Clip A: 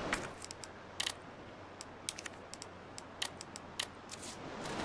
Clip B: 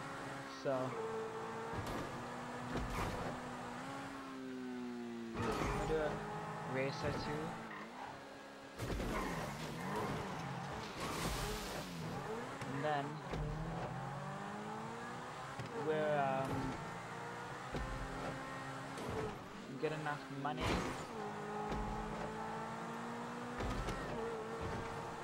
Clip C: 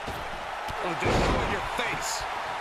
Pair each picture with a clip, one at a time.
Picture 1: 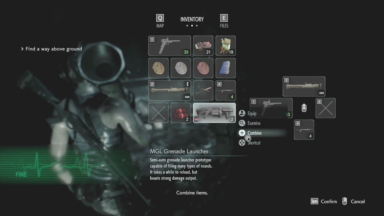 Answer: A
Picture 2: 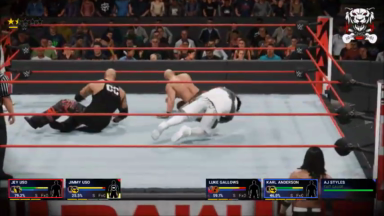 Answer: C